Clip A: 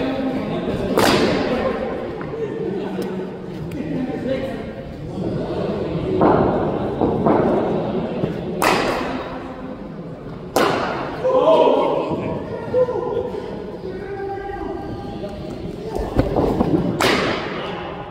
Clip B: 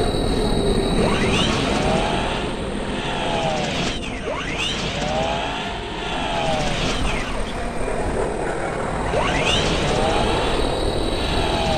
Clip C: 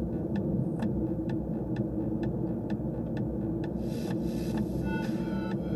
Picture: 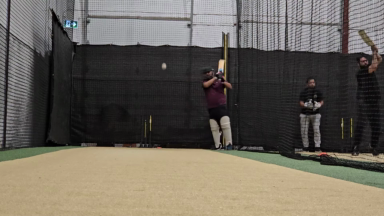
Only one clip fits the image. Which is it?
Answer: A